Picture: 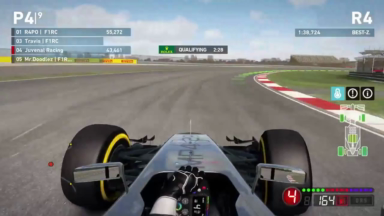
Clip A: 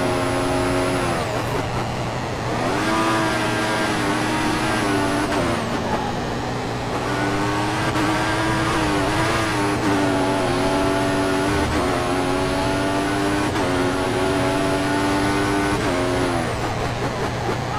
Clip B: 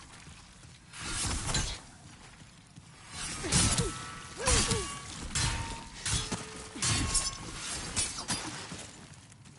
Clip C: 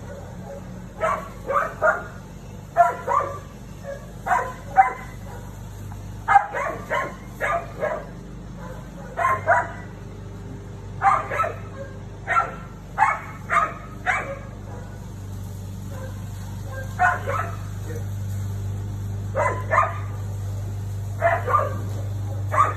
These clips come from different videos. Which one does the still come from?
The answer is A